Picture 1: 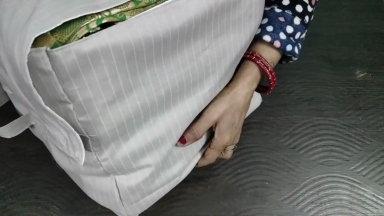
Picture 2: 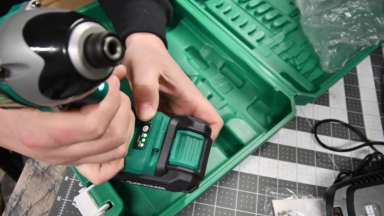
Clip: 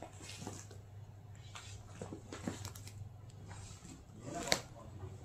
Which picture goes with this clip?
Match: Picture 1